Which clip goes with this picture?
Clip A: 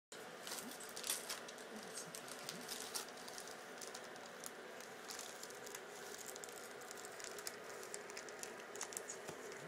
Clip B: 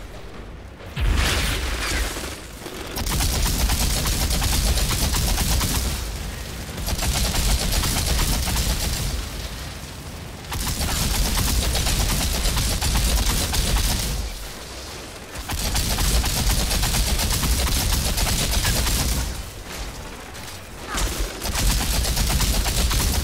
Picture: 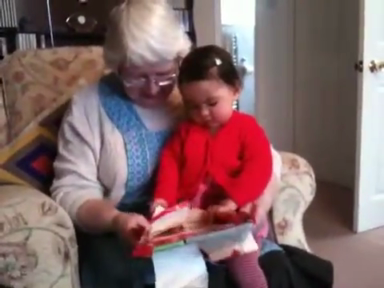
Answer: A